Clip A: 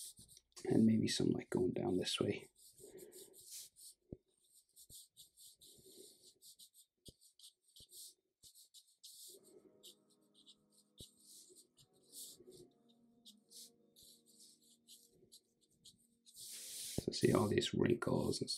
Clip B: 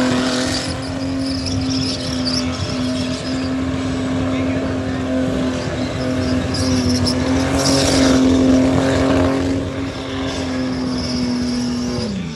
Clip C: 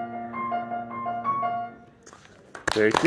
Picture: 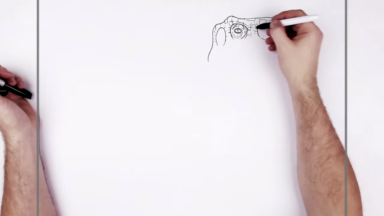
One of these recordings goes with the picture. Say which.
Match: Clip A